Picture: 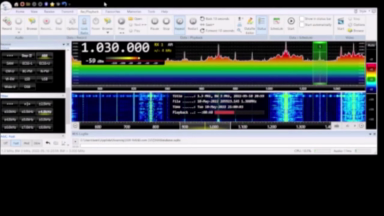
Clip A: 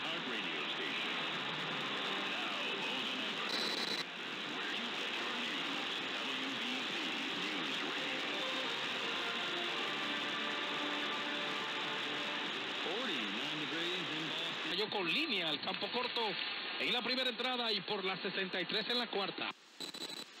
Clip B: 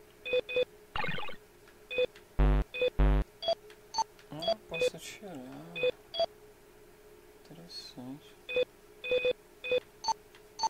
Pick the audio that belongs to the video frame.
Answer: A